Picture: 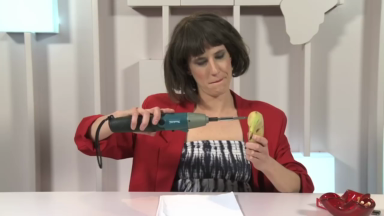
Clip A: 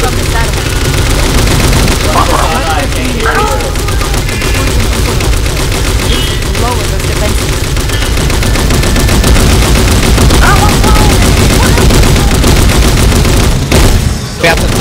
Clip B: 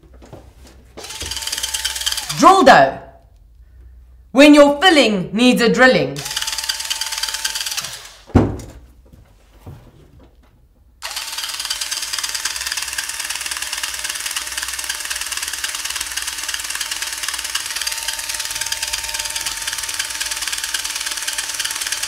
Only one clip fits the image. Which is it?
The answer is B